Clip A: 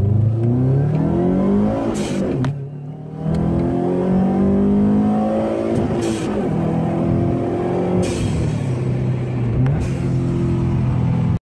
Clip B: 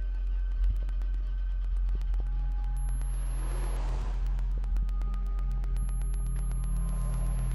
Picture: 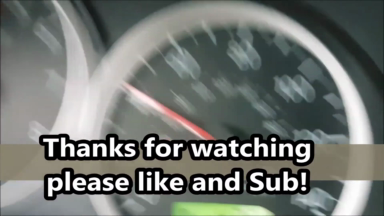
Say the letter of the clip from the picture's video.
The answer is A